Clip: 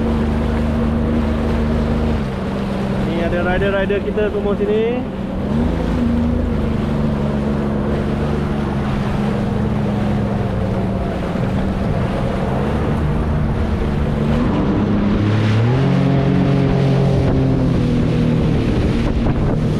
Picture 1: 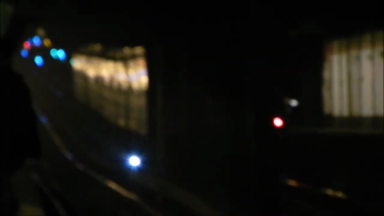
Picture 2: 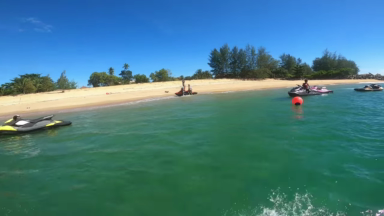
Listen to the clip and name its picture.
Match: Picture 2